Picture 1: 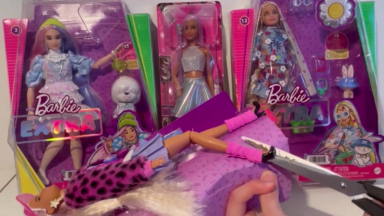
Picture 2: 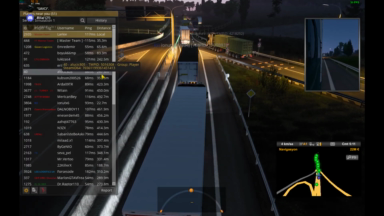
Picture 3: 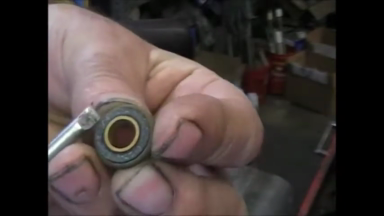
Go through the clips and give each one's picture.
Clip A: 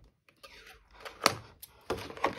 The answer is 1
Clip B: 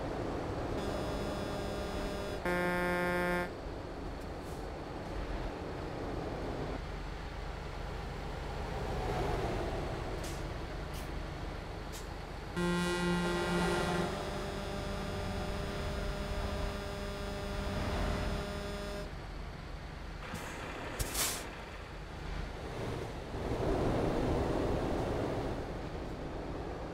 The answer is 2